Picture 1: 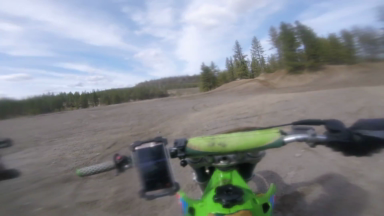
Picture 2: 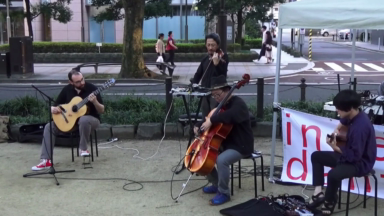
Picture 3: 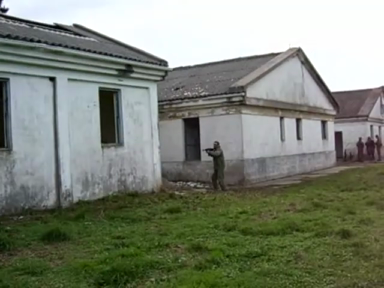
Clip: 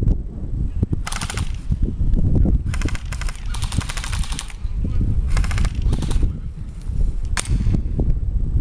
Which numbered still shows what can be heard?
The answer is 3